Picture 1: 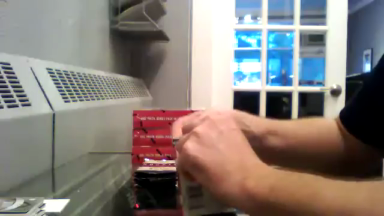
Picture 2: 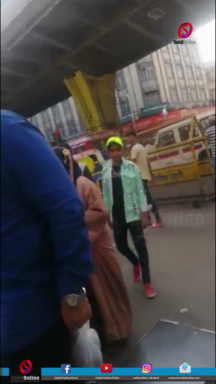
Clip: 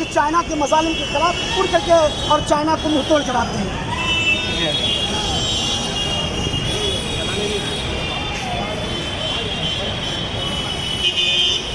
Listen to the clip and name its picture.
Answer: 2